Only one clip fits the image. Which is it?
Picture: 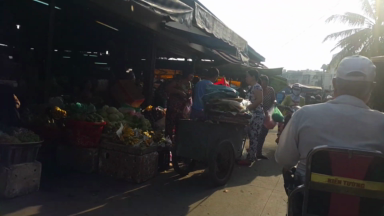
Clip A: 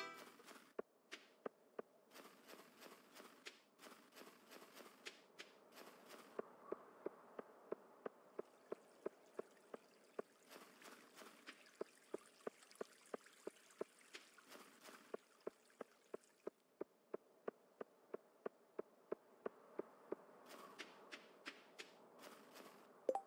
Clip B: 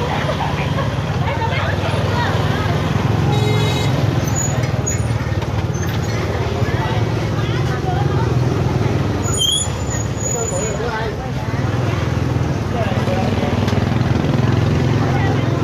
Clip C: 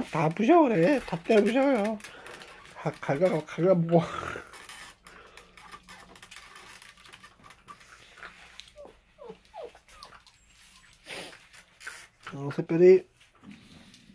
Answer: B